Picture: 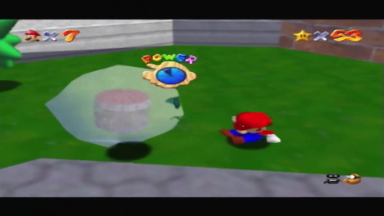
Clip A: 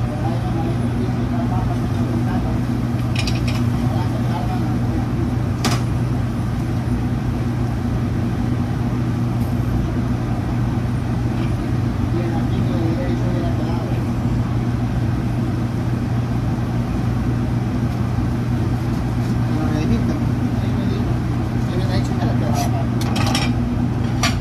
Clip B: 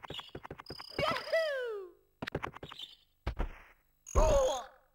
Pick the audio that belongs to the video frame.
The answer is B